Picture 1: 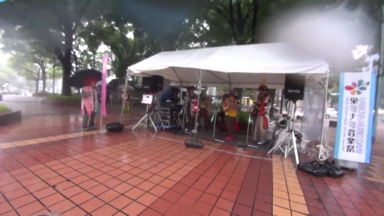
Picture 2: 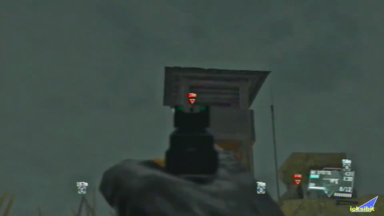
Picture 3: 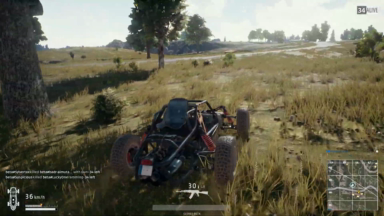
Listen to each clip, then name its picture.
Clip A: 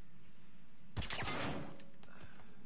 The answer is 2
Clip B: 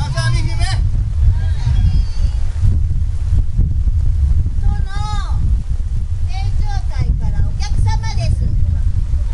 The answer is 1